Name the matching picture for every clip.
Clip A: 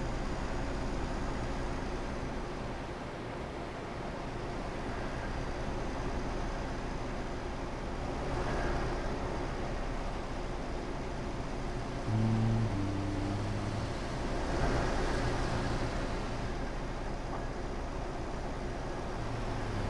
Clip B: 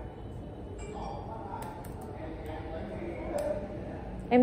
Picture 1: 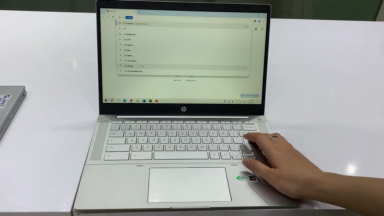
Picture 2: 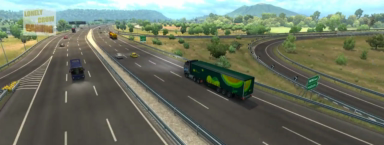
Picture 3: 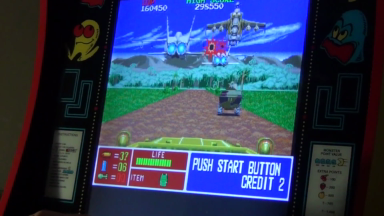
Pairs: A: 2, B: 1